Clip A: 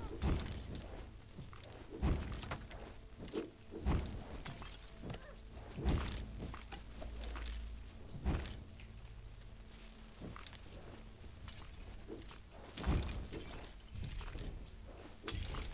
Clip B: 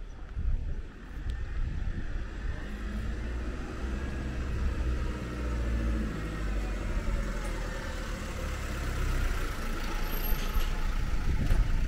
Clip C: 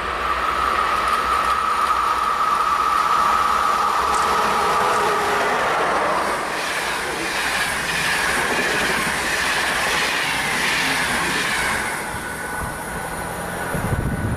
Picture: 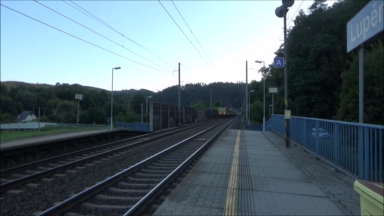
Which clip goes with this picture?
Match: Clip C